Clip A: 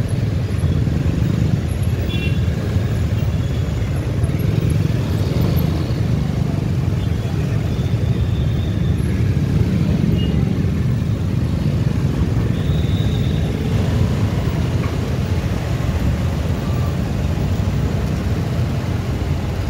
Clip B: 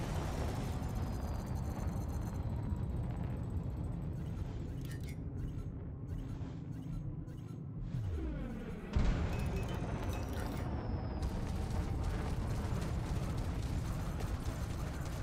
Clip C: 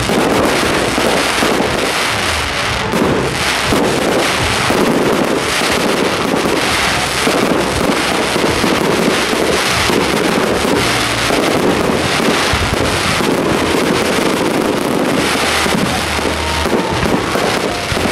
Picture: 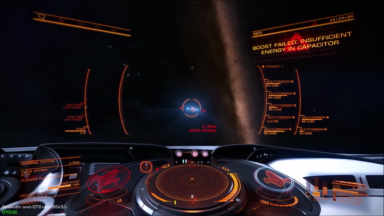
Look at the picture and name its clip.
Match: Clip B